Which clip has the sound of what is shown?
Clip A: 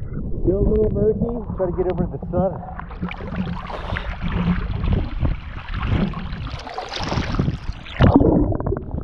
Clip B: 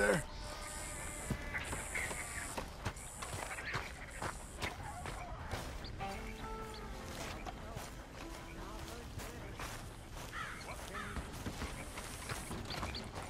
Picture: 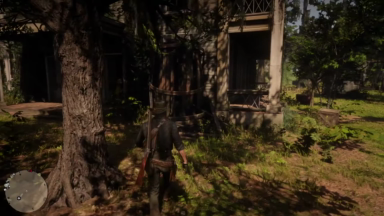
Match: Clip B